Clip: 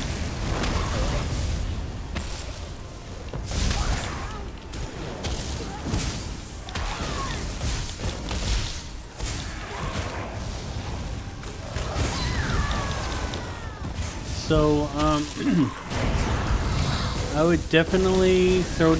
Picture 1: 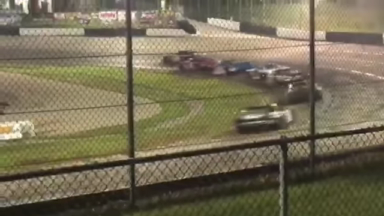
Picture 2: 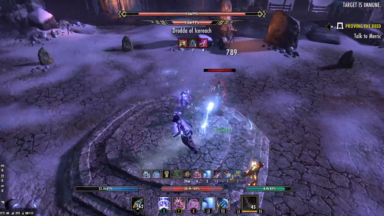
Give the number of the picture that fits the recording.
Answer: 2